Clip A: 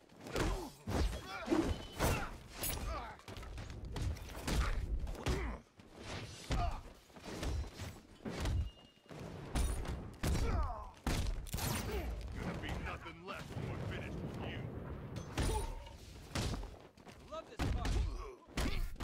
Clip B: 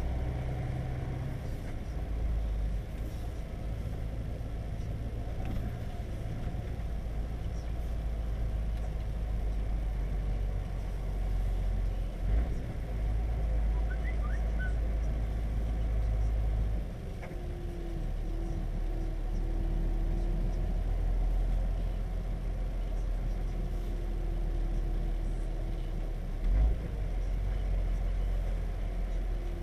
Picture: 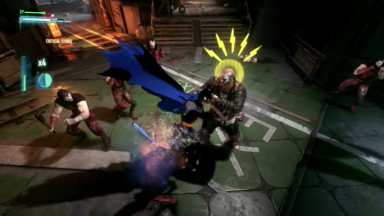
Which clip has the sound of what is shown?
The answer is A